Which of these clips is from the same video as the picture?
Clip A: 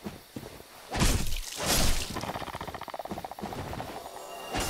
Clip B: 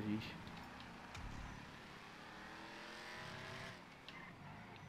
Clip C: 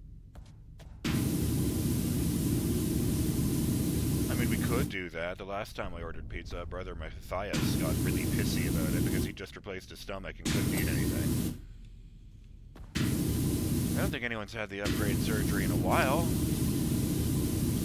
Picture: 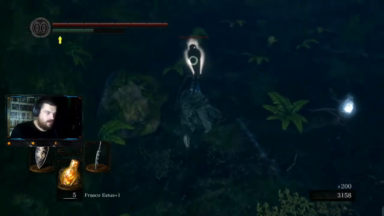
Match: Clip A